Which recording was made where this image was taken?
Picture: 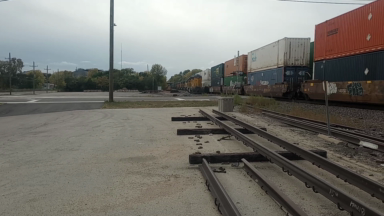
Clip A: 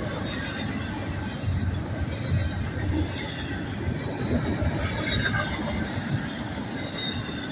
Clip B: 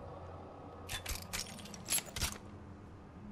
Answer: A